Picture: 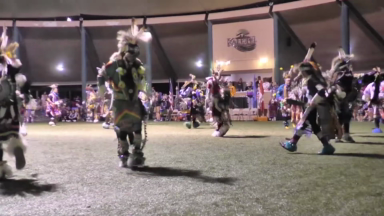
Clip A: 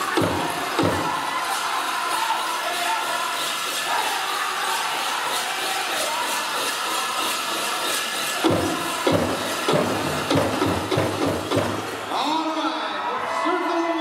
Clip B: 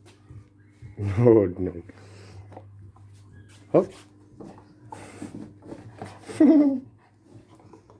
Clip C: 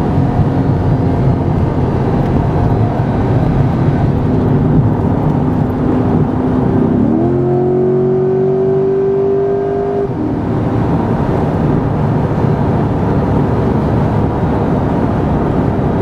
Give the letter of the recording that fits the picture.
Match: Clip A